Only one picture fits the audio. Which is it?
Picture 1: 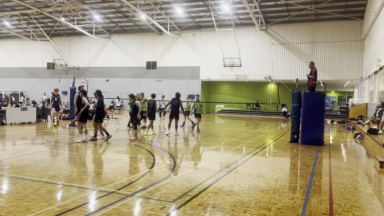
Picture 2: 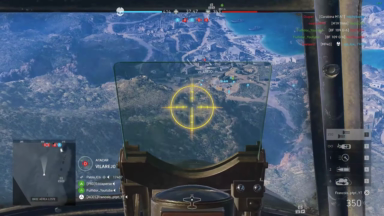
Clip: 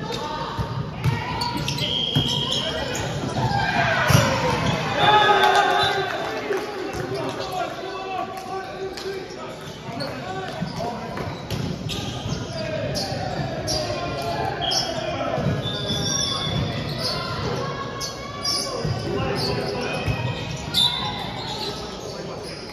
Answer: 1